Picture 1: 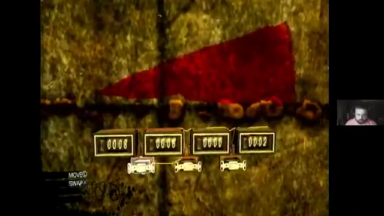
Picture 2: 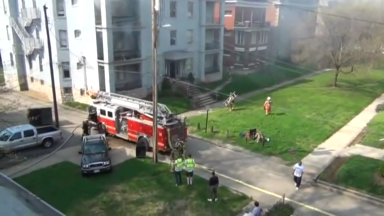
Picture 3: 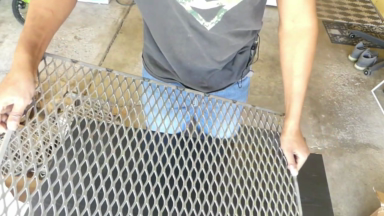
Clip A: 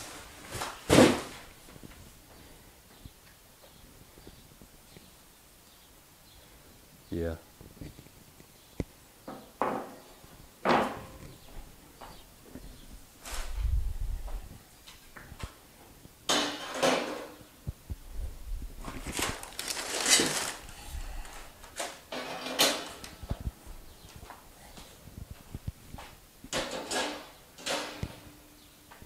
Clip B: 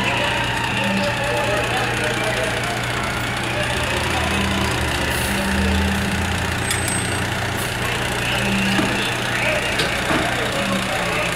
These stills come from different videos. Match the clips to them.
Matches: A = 3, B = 2